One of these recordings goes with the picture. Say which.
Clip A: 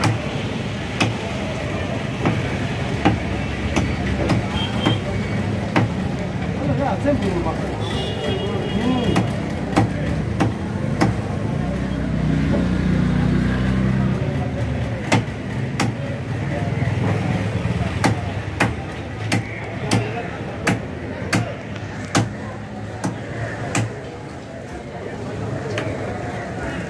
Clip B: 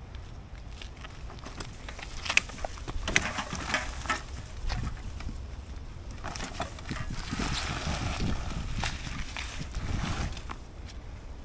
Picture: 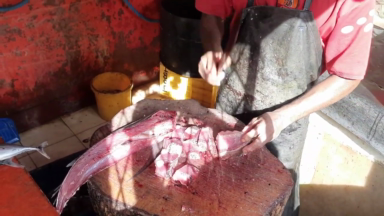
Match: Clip A